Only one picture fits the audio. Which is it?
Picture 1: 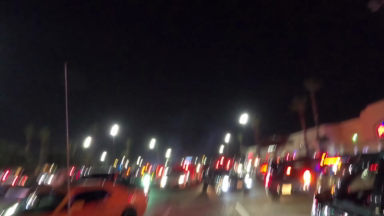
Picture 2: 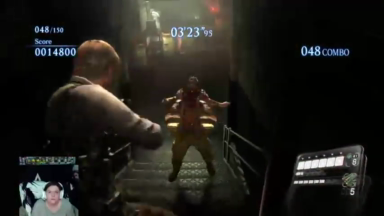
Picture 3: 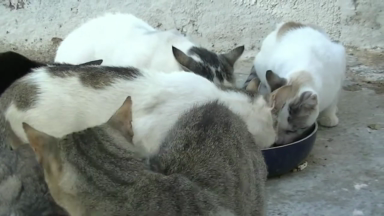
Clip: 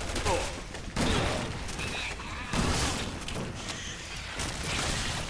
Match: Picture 2